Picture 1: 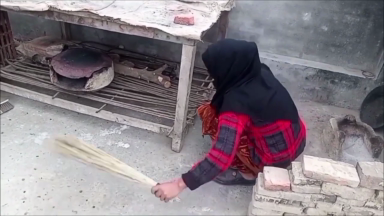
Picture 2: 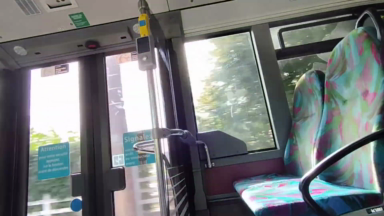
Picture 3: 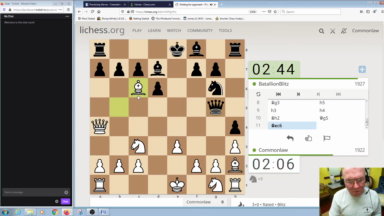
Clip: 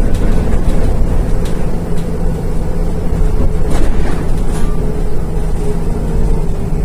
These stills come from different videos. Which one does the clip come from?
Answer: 2